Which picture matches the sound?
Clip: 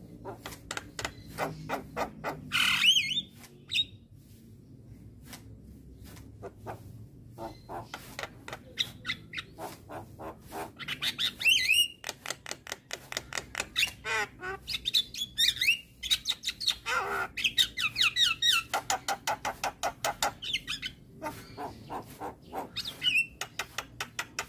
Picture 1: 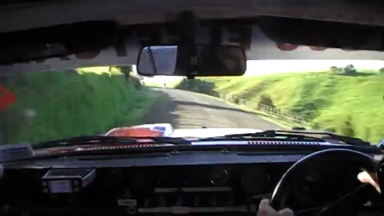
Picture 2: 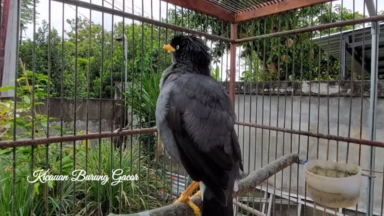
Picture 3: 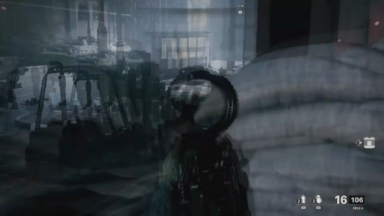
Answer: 2